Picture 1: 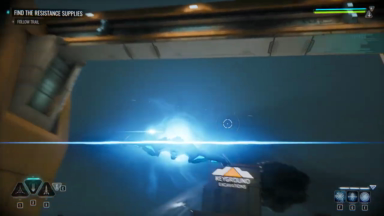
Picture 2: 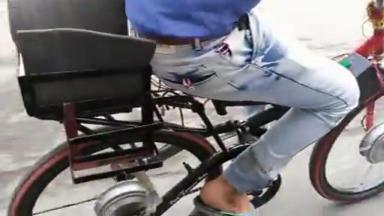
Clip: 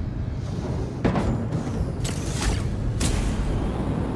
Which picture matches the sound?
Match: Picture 1